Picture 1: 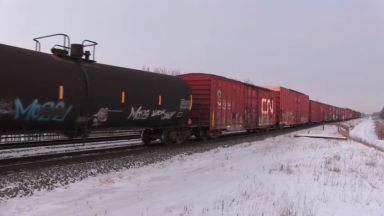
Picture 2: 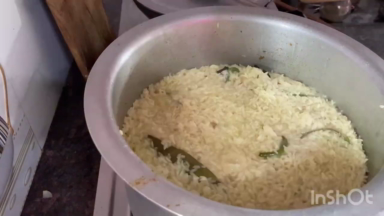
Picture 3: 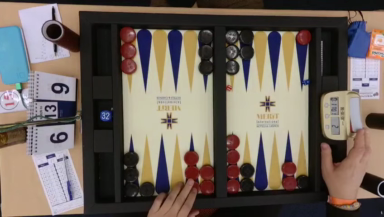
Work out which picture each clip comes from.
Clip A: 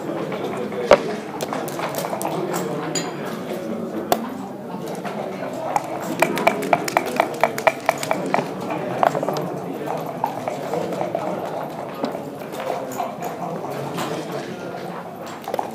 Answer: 3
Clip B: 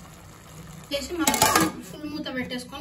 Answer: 2